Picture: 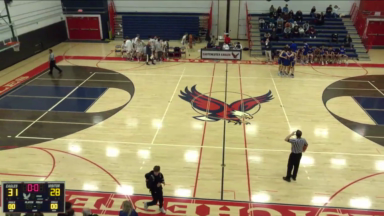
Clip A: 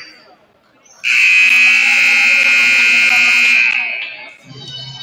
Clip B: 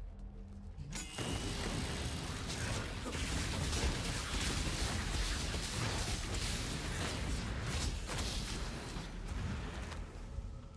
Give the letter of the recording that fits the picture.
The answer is A